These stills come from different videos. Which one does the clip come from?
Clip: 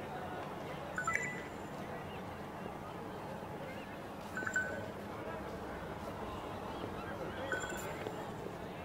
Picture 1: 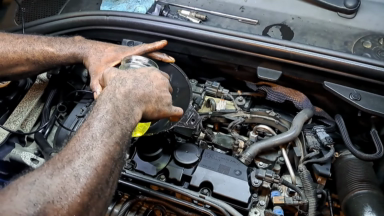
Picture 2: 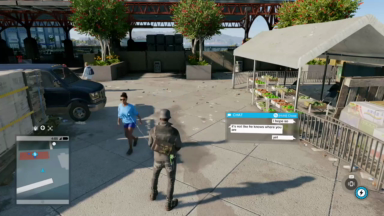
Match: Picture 2